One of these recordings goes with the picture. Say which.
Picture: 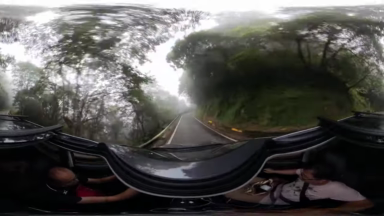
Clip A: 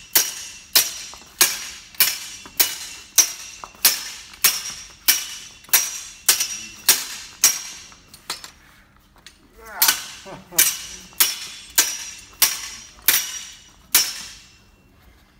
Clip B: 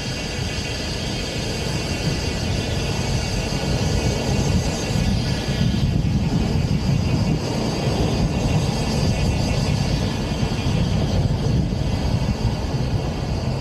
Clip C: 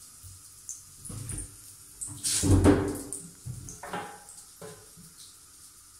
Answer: B